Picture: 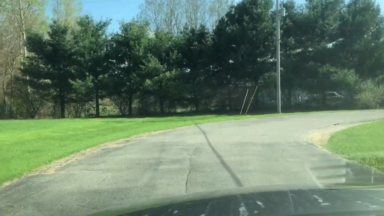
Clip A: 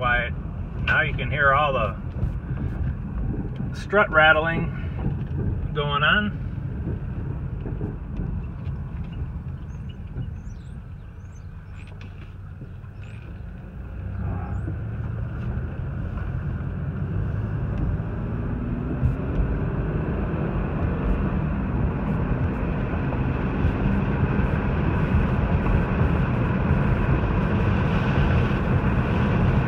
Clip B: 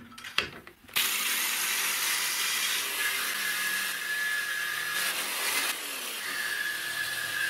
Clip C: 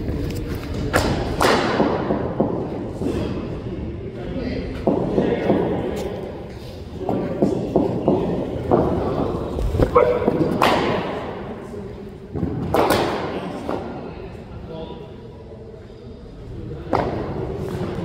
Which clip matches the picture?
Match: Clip A